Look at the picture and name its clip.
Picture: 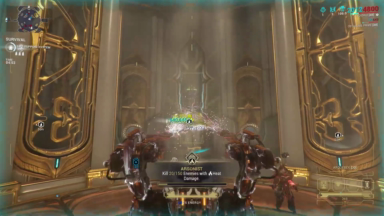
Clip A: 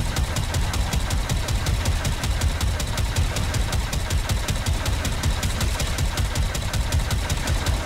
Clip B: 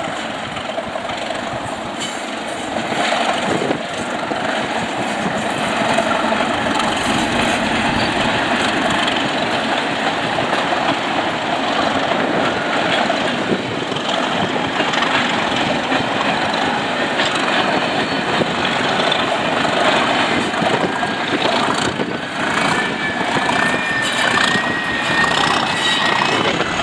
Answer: A